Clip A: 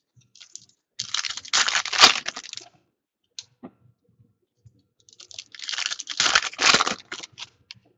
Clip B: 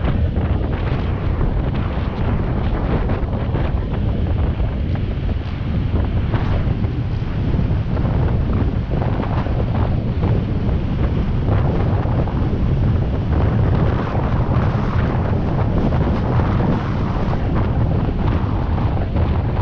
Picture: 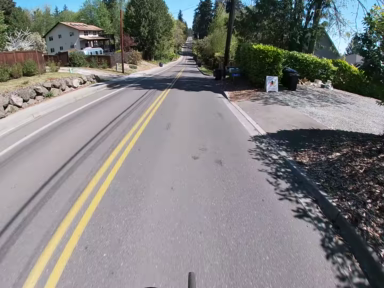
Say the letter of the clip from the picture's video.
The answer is B